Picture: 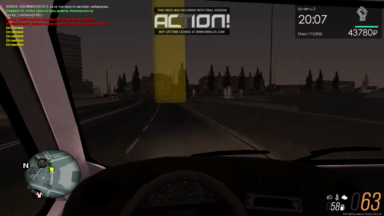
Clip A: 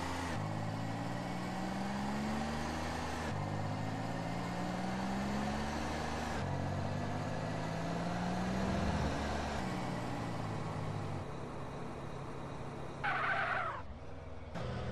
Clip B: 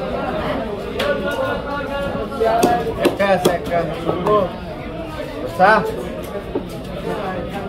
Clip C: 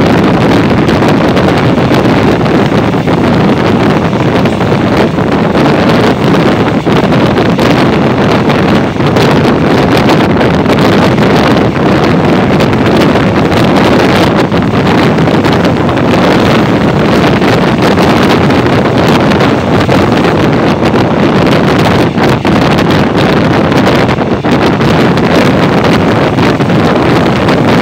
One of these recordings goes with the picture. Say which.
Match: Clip A